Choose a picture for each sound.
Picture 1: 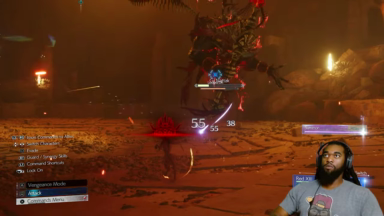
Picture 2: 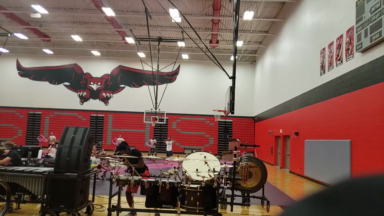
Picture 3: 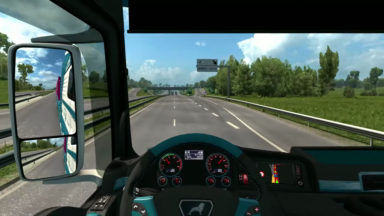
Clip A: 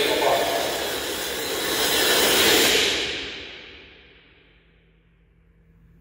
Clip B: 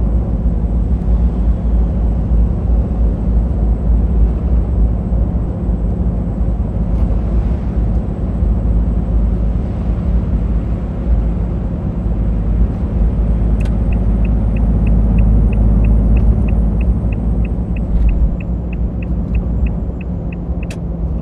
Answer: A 2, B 3